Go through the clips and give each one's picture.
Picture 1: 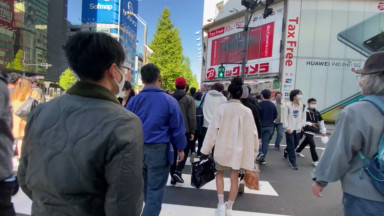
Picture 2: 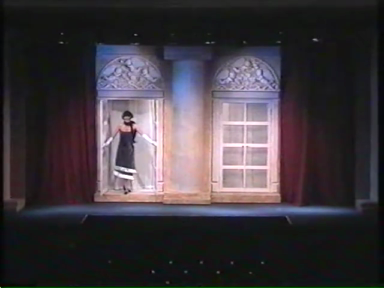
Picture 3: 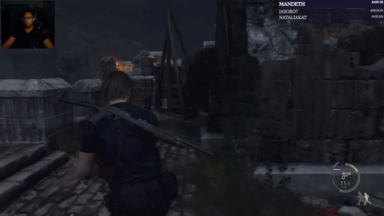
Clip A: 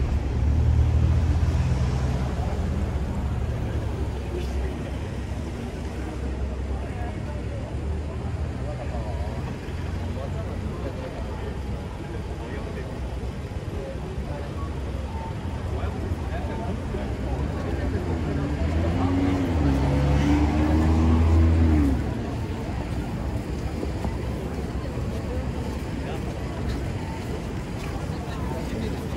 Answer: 1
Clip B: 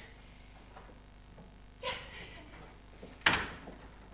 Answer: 2